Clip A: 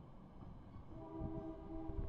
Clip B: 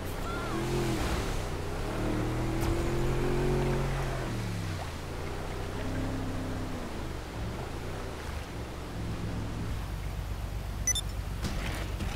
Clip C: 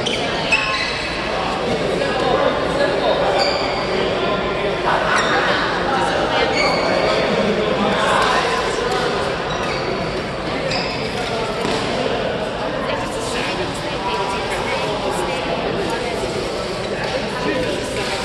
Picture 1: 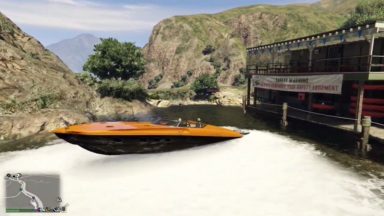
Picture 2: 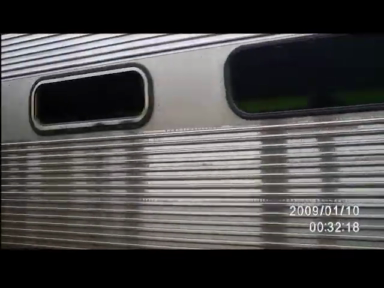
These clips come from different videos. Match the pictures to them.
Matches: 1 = B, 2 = A